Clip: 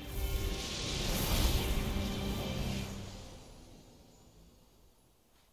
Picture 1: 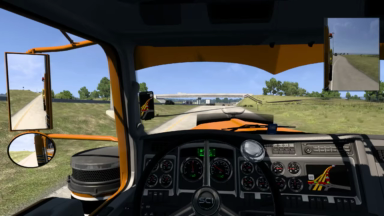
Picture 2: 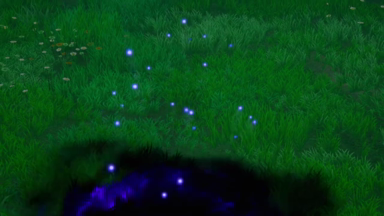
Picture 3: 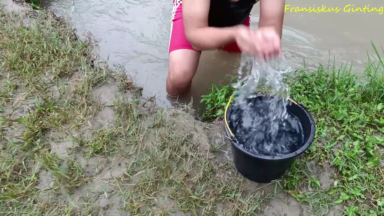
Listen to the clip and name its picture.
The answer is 2